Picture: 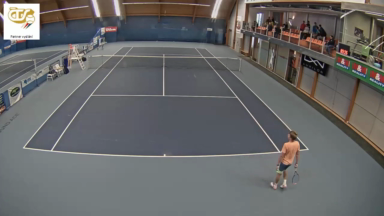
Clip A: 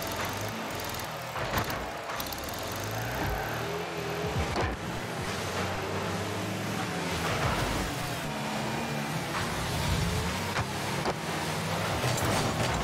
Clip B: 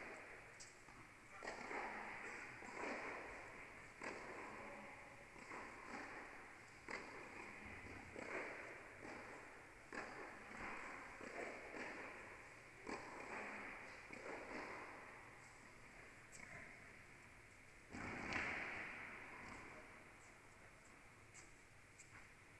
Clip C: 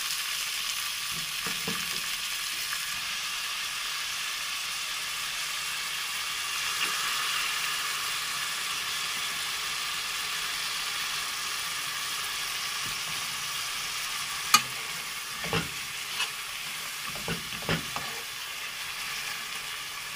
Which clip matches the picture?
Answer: B